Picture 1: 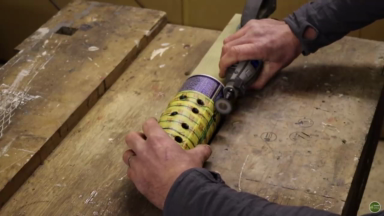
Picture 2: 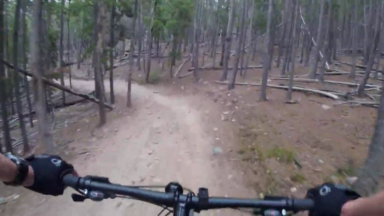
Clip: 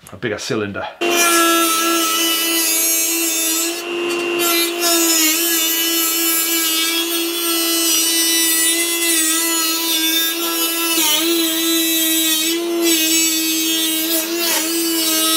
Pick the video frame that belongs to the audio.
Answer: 1